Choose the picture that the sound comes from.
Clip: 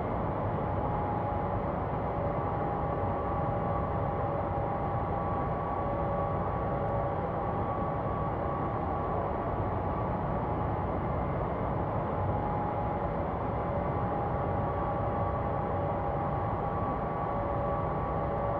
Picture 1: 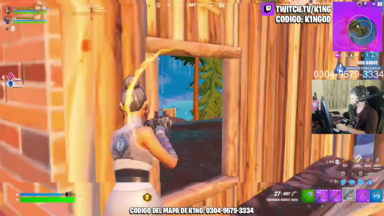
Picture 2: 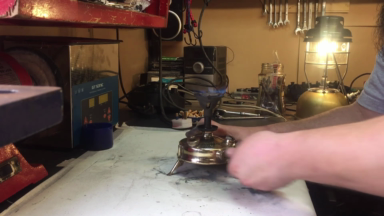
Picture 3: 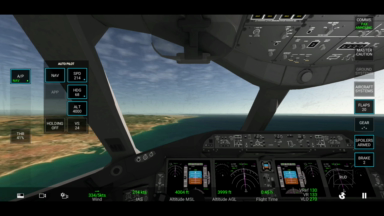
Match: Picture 3